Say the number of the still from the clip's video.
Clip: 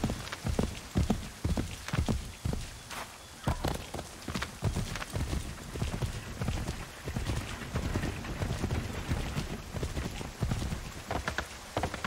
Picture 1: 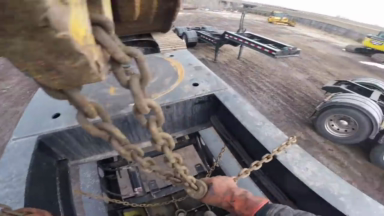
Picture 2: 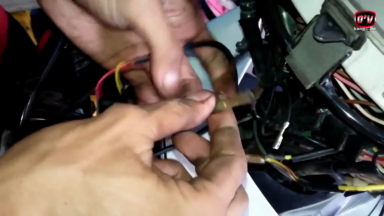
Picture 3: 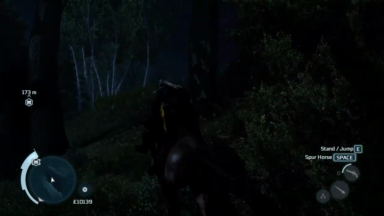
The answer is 3